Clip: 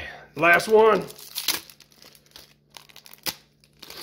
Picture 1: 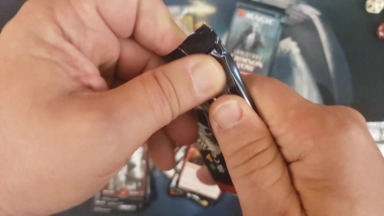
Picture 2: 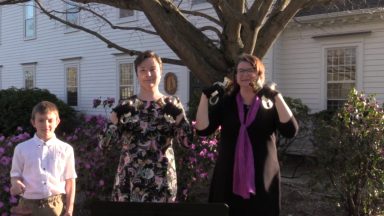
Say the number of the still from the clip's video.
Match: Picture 1